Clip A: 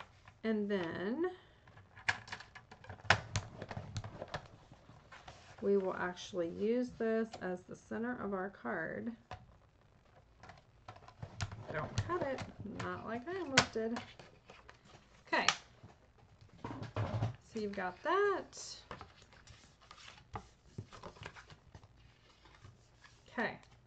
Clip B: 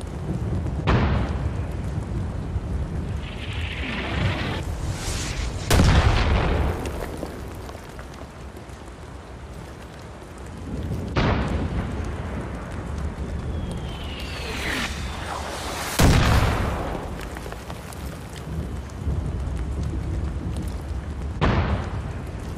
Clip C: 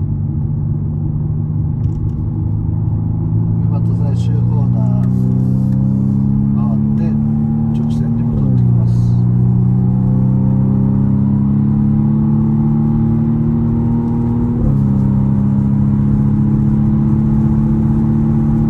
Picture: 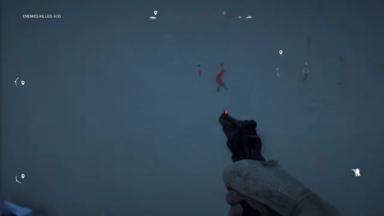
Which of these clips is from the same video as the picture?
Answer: B